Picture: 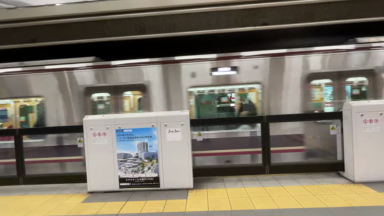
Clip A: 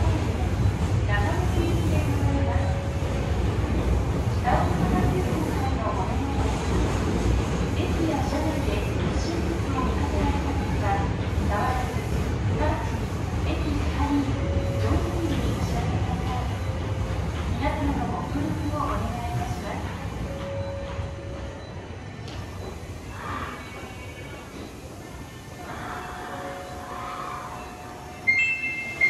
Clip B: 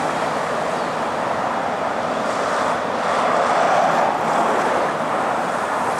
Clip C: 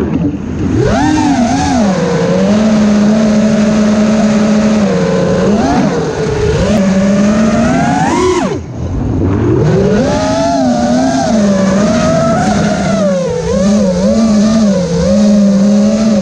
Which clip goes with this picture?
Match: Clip A